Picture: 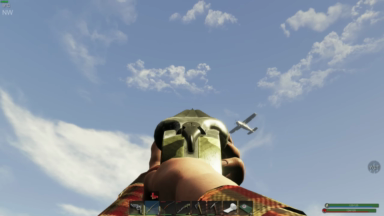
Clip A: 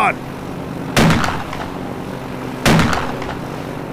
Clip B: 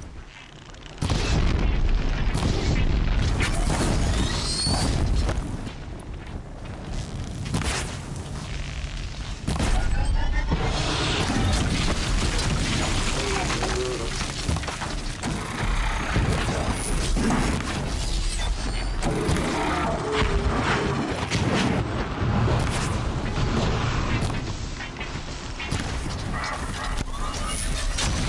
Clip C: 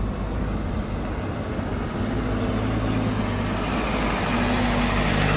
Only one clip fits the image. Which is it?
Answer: A